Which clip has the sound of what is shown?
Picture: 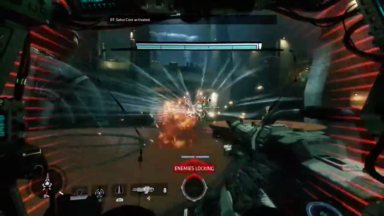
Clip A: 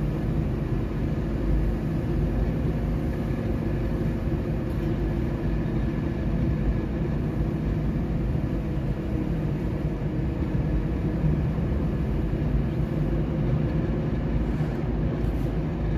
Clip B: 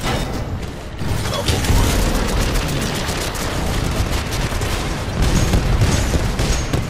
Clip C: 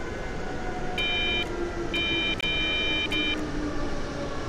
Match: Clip B